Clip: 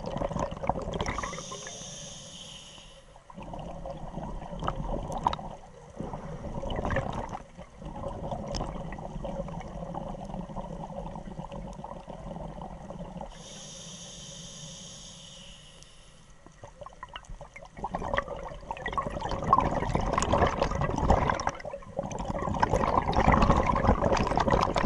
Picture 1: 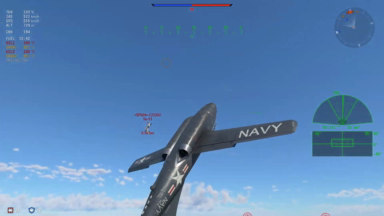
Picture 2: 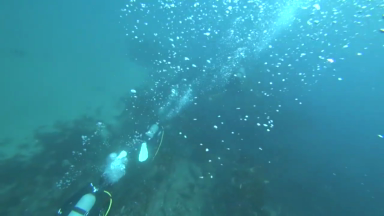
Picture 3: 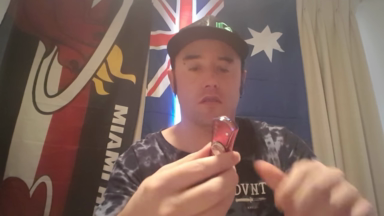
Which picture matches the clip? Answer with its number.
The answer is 2